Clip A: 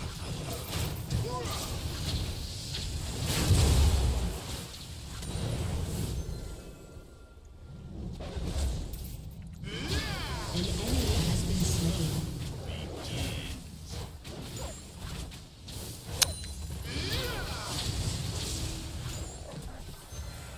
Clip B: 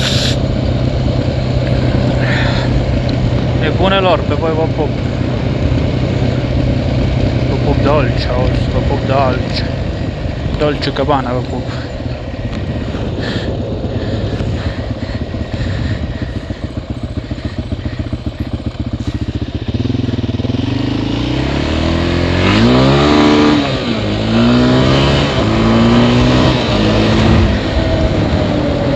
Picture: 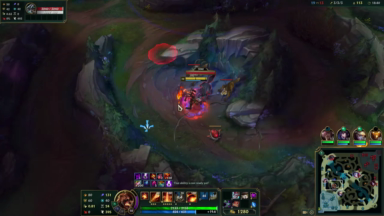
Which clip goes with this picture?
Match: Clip A